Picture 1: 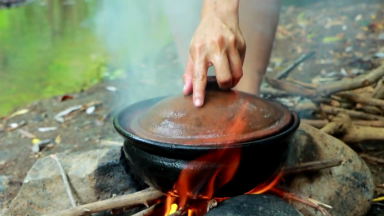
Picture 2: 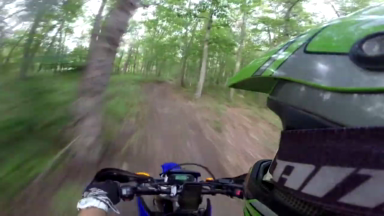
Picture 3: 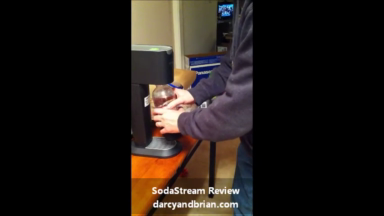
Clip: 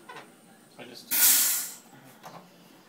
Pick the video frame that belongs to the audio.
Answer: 3